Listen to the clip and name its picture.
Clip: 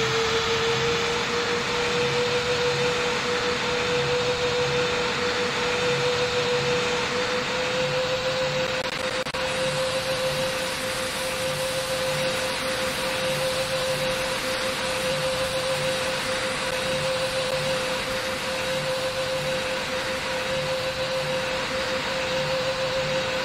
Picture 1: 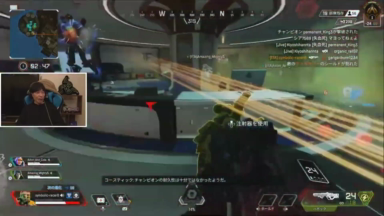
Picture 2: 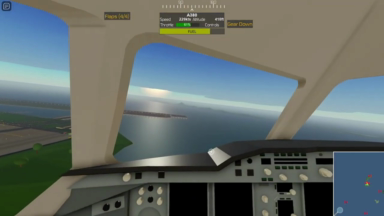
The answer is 2